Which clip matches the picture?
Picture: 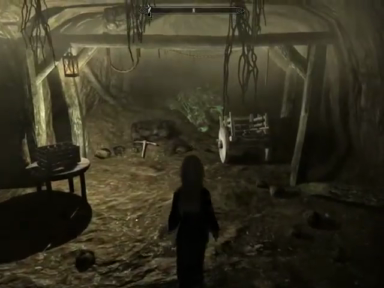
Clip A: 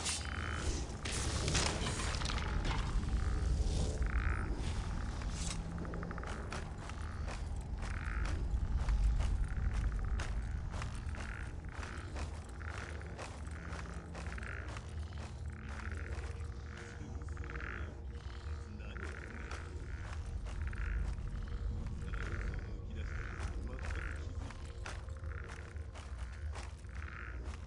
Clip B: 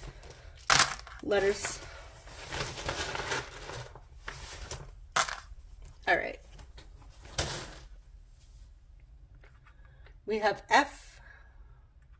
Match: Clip A